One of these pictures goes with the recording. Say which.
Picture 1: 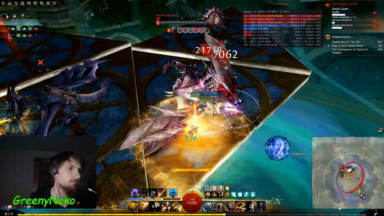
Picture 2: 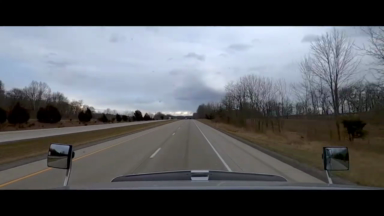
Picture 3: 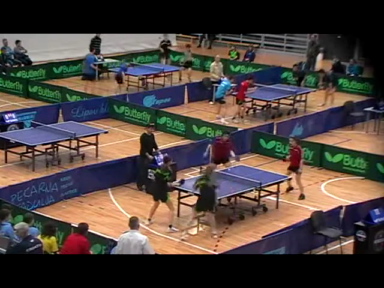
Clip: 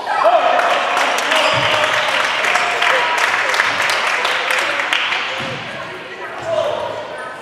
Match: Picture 3